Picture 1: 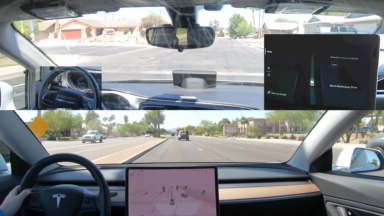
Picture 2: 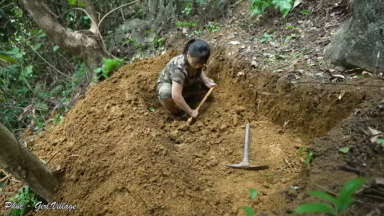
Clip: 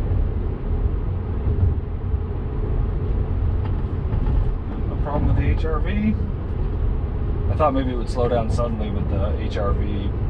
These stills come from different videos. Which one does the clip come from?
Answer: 1